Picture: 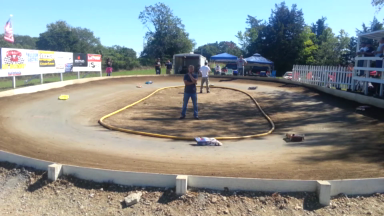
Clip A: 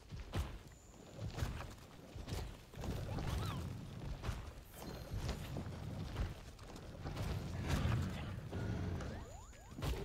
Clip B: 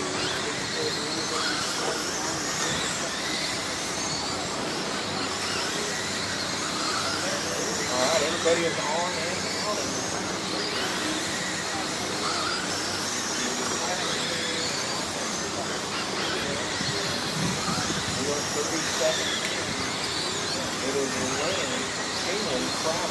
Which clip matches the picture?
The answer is B